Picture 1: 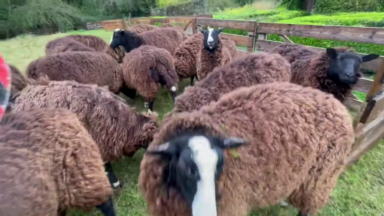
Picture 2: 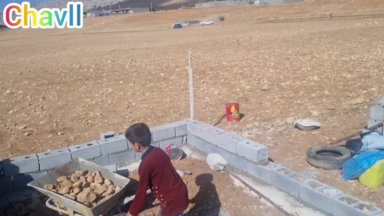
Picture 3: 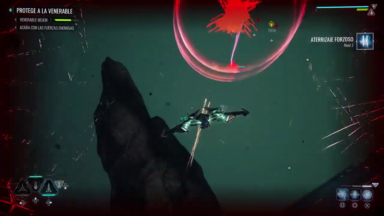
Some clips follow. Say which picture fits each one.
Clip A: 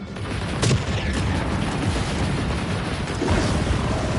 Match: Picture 3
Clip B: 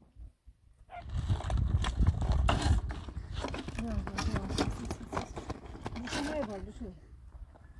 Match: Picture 2